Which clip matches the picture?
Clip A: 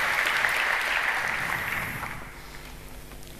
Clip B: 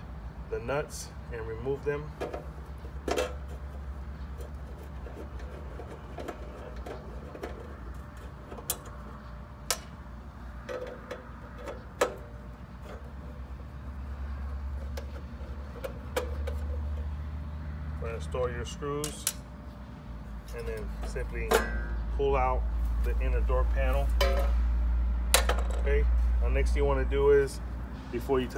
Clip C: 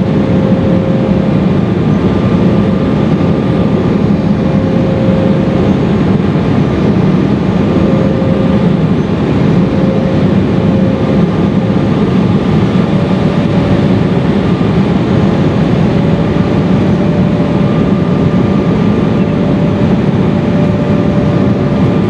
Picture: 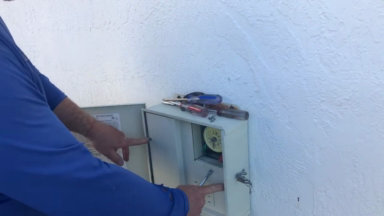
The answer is B